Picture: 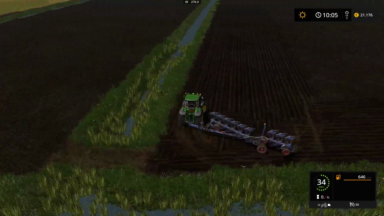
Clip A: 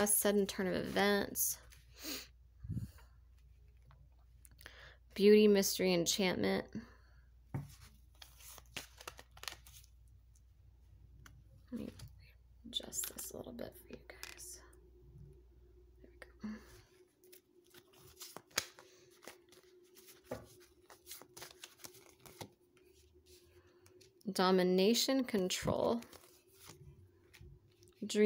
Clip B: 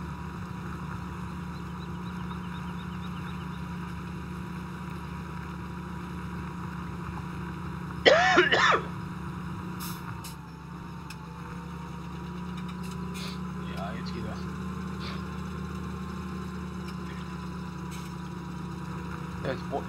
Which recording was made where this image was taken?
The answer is B